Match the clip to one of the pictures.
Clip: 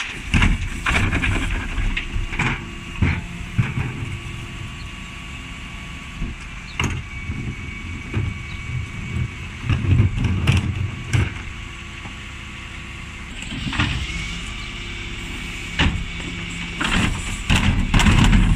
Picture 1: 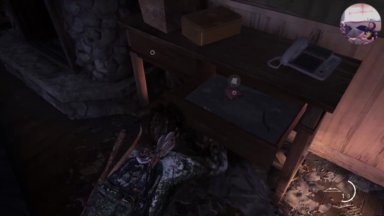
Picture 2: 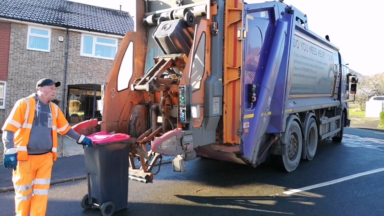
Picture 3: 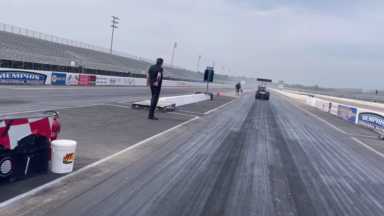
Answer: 2